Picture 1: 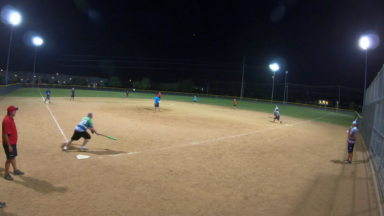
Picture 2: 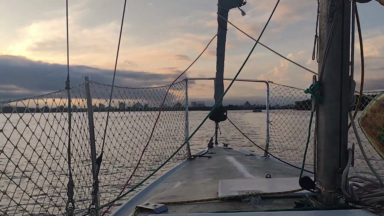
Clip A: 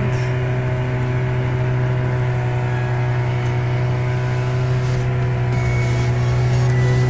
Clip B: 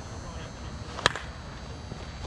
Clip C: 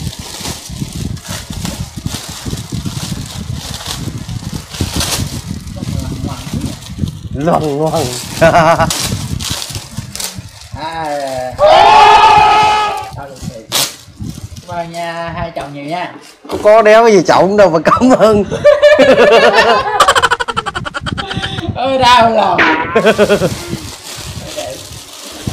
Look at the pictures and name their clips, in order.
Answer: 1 B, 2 A